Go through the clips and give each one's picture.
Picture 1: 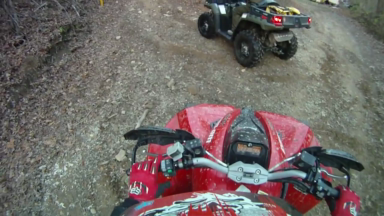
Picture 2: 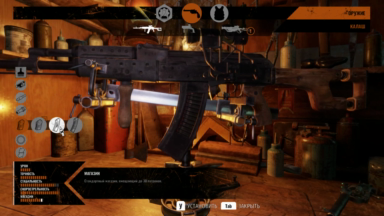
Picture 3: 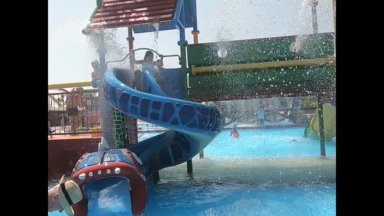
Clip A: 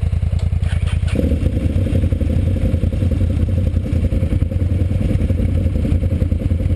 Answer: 1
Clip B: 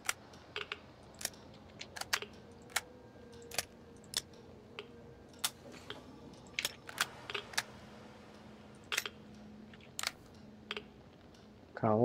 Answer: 2